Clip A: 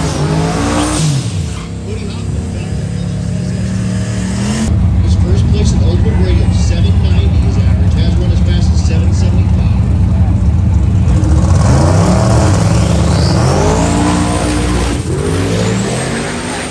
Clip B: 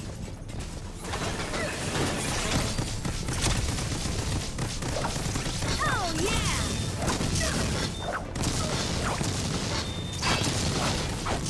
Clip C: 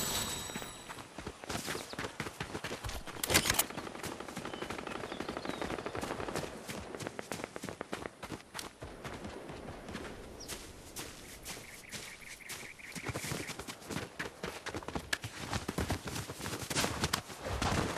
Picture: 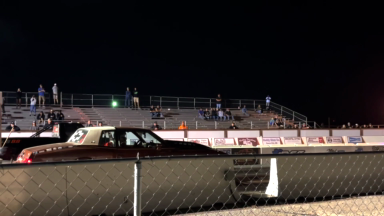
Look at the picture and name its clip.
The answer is A